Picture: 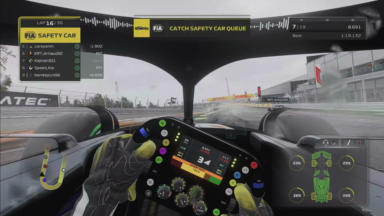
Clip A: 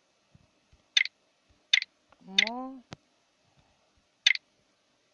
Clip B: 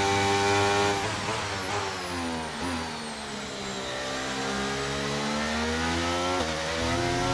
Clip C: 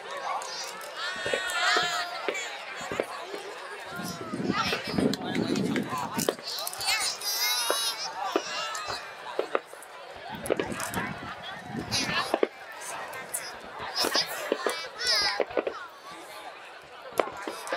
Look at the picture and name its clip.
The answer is B